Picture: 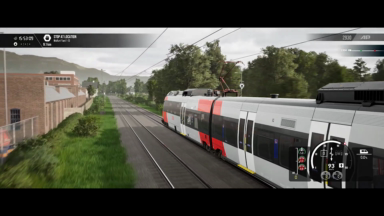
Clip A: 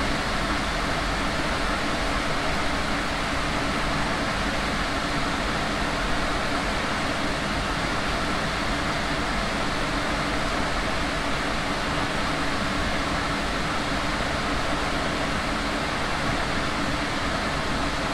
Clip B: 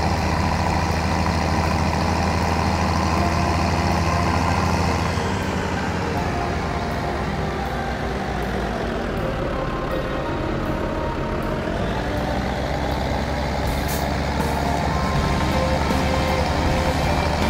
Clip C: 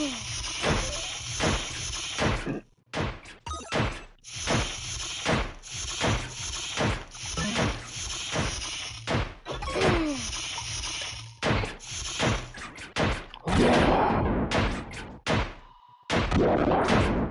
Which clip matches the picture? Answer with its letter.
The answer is A